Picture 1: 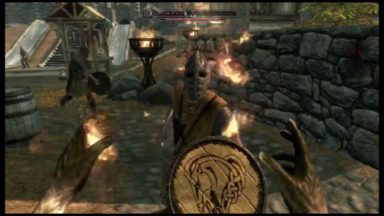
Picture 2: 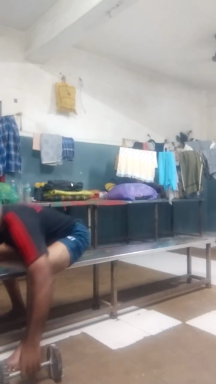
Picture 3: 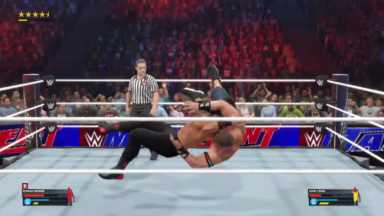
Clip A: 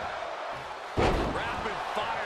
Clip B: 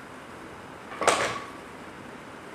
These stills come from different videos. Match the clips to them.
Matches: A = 3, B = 2